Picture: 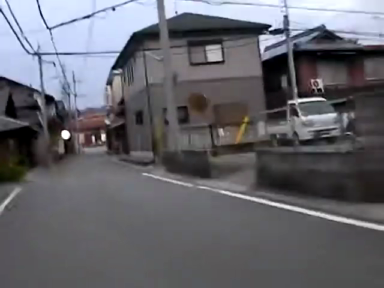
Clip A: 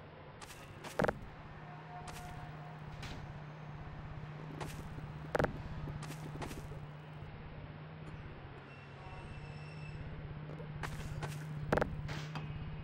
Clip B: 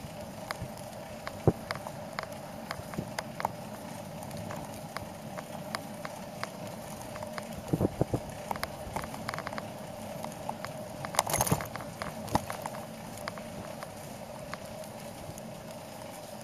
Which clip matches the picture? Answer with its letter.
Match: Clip B